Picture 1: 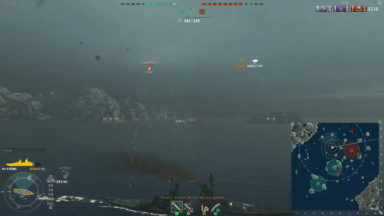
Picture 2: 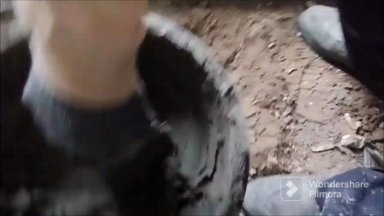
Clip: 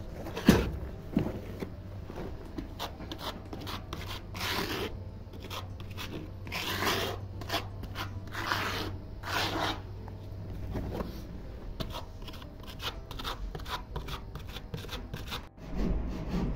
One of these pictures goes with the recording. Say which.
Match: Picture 2